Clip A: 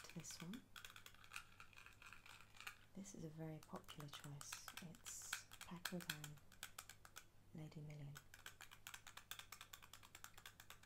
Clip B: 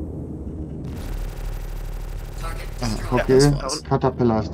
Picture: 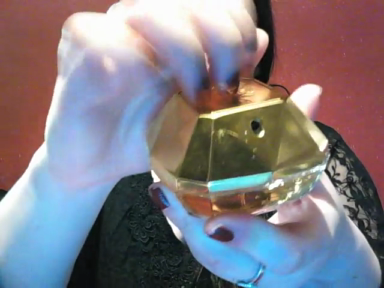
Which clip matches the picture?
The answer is A